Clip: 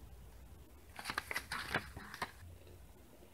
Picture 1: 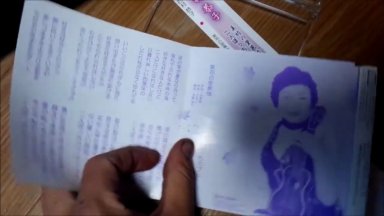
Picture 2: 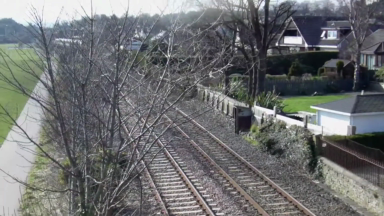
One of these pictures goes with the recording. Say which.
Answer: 1